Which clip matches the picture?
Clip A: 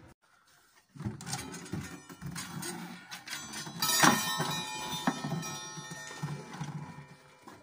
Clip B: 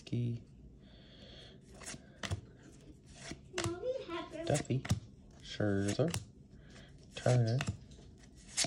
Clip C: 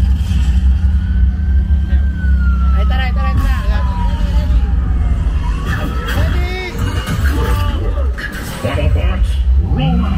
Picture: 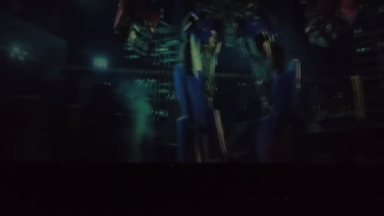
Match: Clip C